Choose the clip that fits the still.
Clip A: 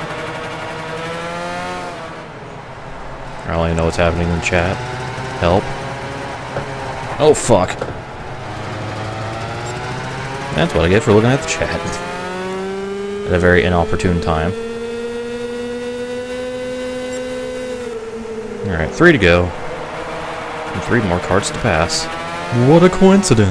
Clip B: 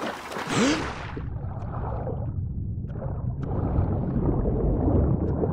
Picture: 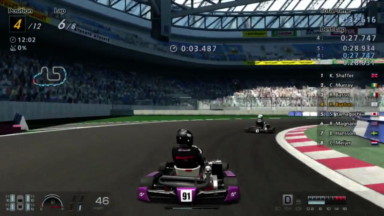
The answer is A